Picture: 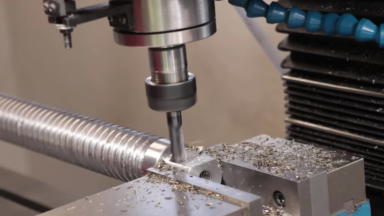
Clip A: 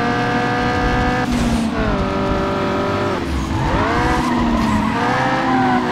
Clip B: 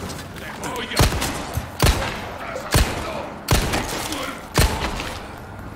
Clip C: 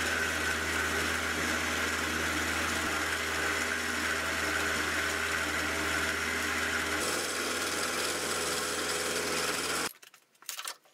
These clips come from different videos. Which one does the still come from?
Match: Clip C